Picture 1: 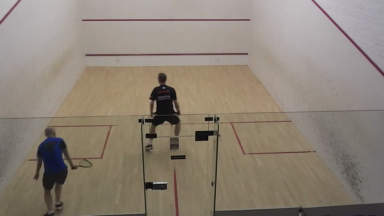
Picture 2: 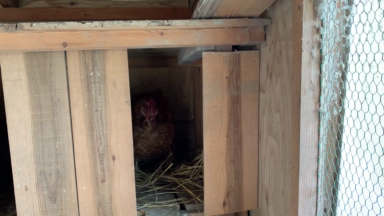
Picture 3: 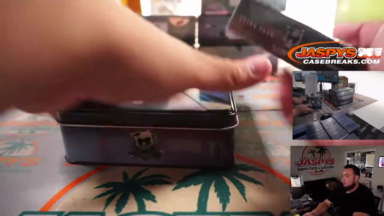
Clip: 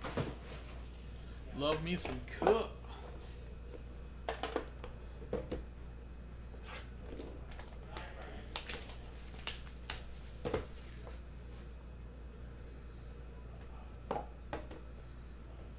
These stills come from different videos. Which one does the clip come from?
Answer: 3